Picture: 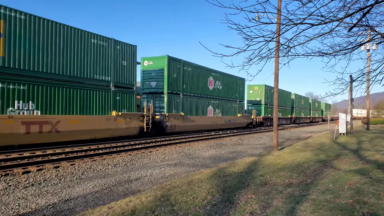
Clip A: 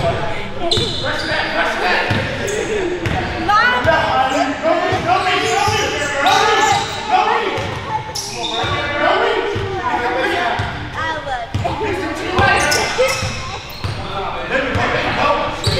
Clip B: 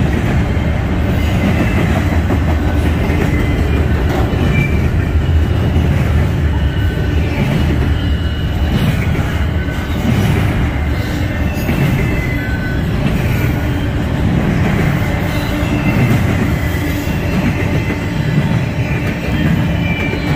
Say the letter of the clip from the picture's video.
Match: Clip B